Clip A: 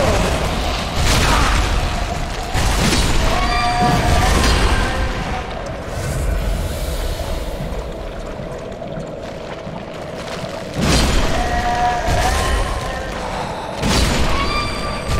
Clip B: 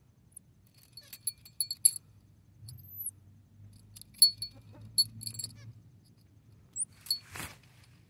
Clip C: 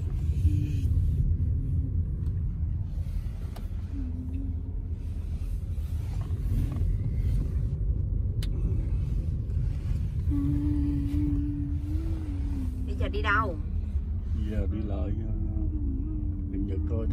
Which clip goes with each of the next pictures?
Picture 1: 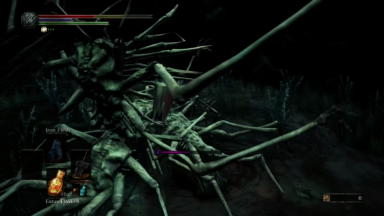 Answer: A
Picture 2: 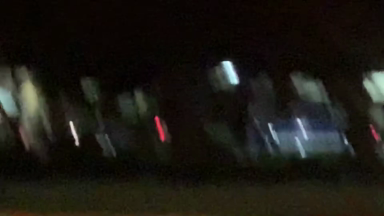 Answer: C